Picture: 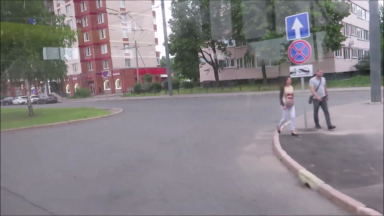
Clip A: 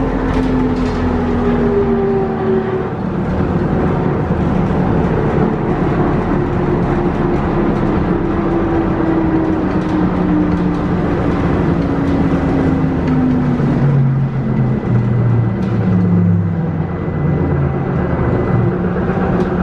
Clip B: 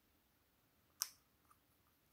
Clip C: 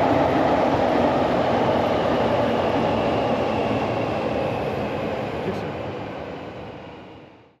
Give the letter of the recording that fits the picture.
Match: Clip A